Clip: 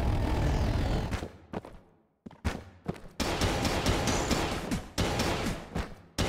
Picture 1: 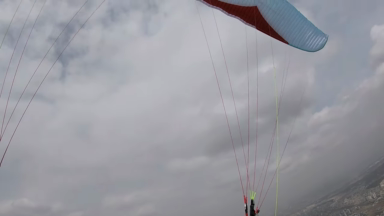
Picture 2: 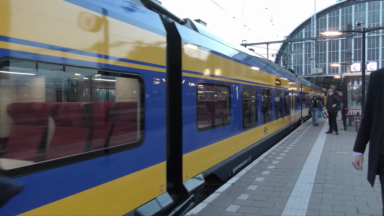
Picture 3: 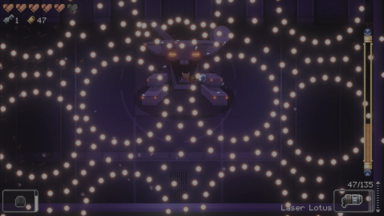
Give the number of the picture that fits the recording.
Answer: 3